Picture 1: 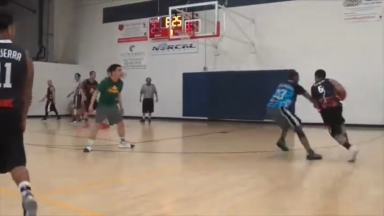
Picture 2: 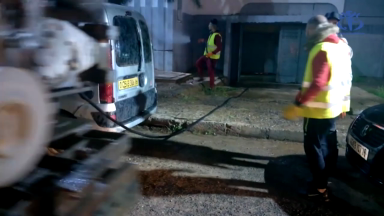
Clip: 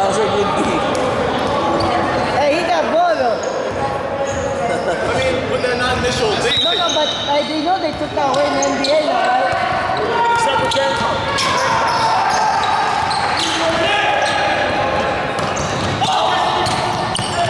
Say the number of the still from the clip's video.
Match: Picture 1